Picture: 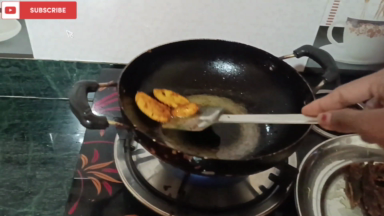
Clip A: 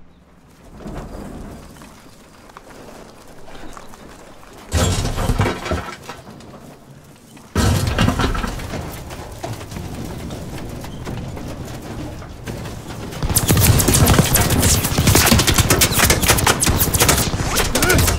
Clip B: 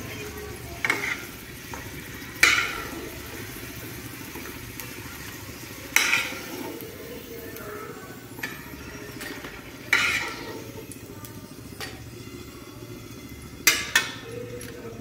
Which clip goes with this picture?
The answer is B